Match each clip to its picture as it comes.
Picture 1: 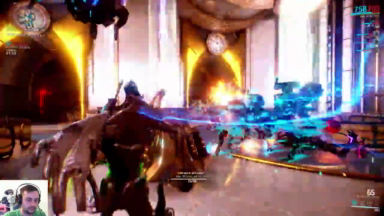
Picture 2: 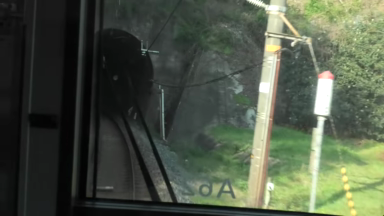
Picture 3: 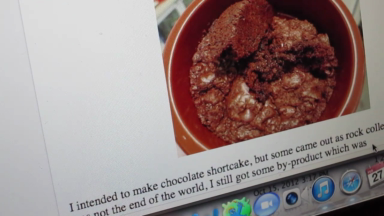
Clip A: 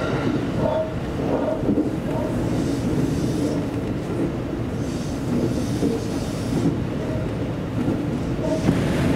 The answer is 2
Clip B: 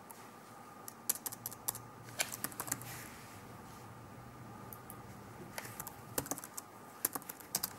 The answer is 3